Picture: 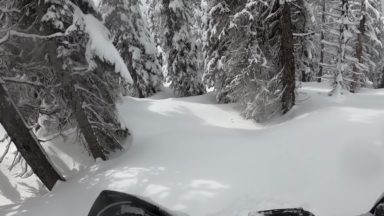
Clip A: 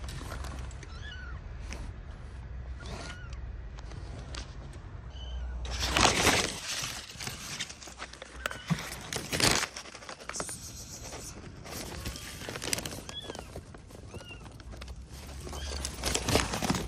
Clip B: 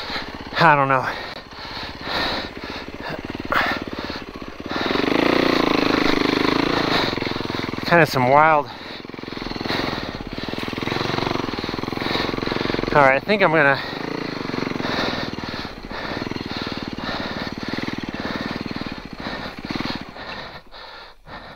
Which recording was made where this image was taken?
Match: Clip B